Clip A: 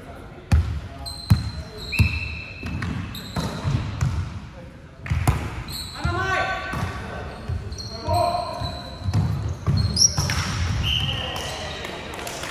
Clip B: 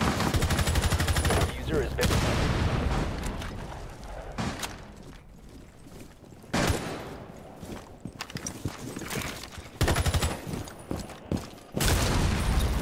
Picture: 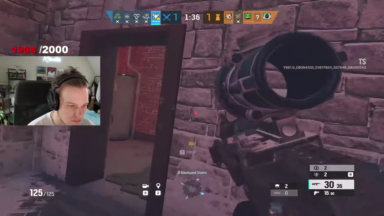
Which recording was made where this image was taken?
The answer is B